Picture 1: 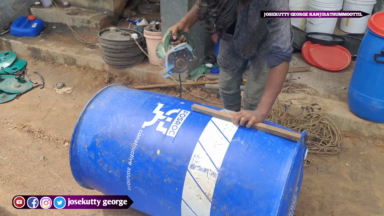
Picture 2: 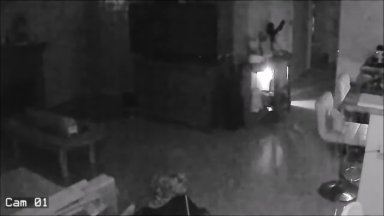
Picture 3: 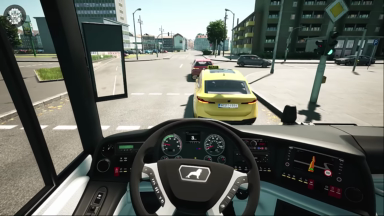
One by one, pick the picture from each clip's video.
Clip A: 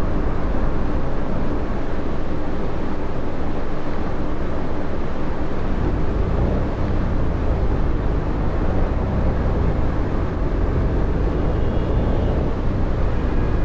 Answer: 3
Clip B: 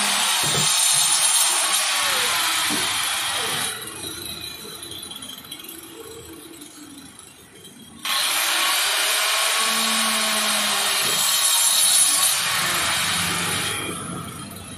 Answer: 1